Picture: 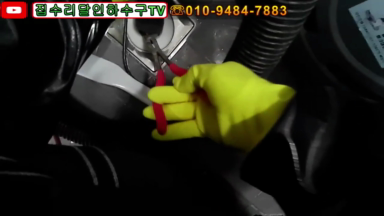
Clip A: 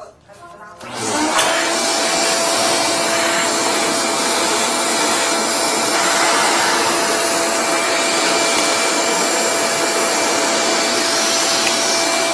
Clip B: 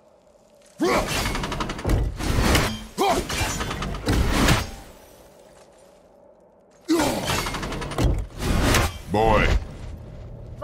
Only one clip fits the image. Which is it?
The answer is A